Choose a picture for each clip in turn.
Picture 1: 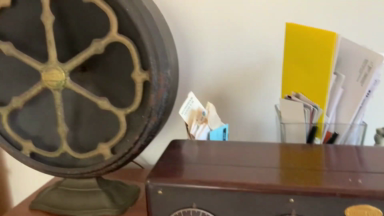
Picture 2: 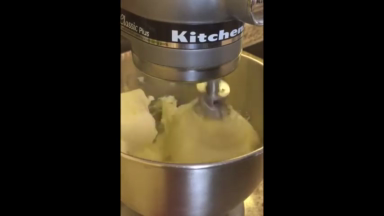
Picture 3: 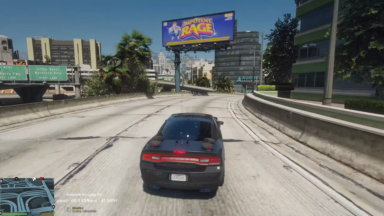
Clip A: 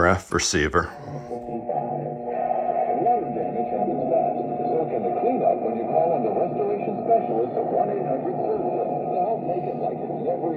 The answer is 1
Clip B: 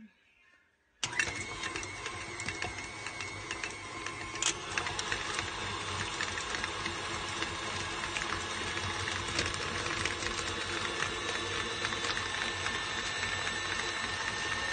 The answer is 2